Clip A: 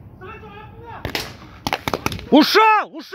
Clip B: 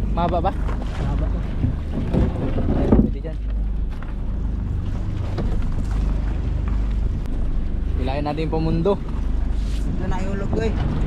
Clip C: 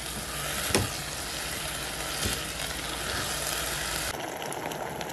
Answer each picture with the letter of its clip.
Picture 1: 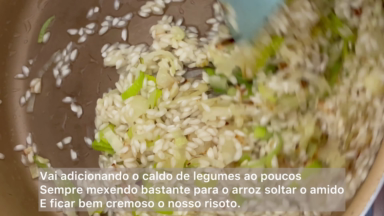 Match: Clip C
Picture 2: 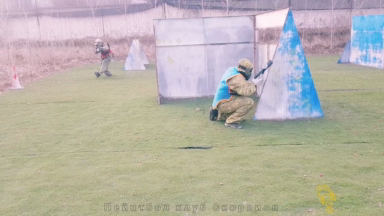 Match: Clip A